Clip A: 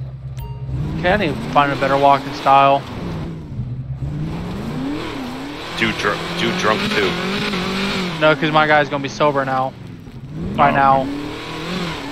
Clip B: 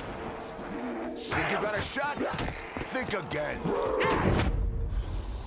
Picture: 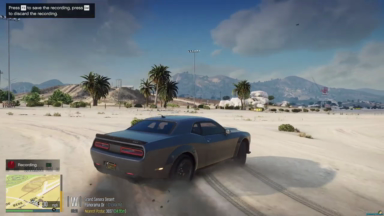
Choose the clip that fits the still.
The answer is A